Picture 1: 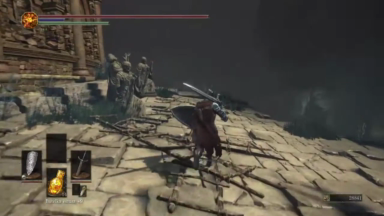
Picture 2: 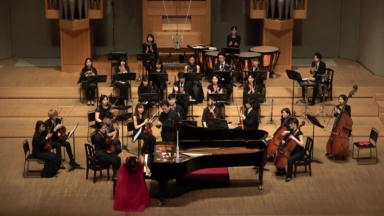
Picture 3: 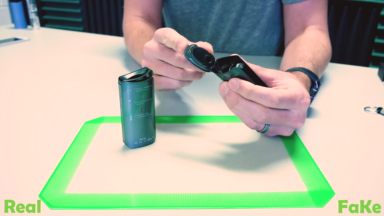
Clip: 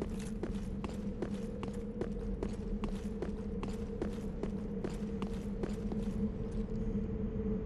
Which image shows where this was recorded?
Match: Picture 1